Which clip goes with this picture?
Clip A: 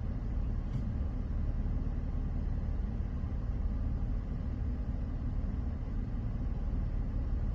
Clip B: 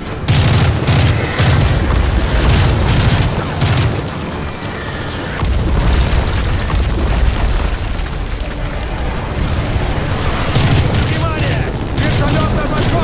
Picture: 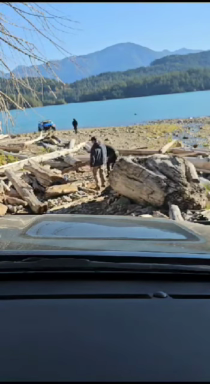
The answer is A